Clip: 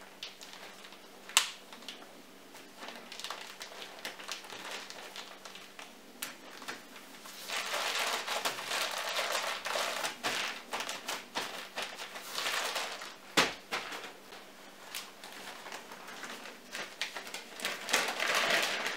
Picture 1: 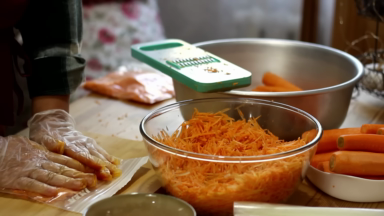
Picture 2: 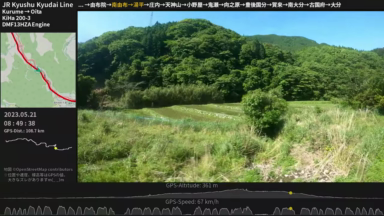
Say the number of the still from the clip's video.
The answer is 1